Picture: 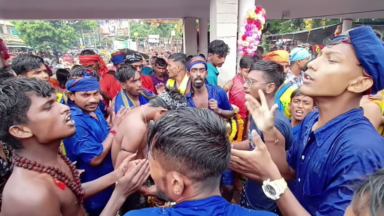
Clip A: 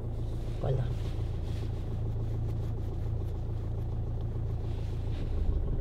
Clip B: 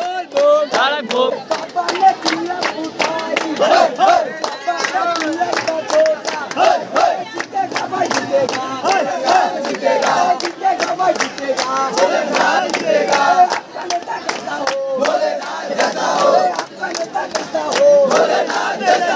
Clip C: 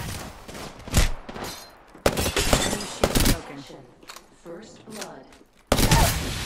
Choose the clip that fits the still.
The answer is B